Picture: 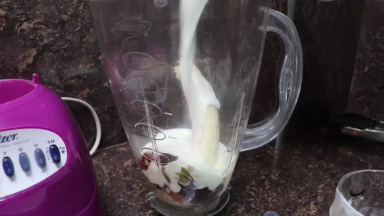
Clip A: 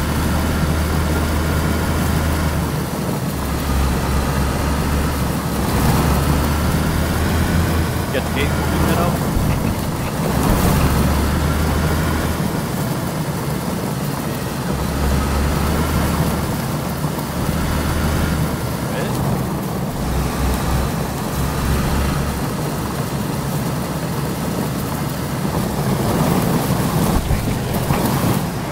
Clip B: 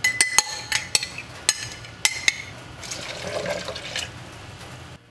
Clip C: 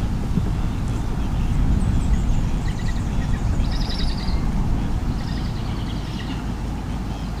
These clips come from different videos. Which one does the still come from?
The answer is B